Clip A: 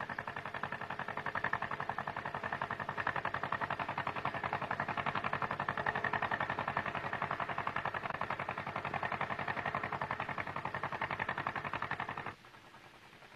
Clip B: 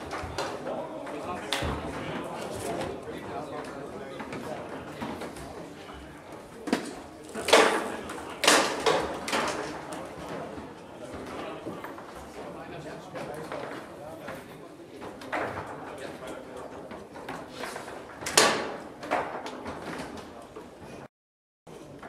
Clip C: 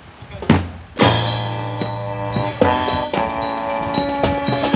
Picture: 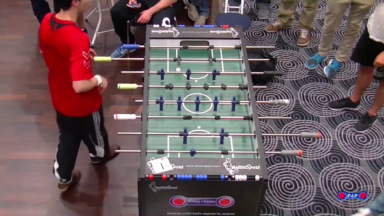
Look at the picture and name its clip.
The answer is B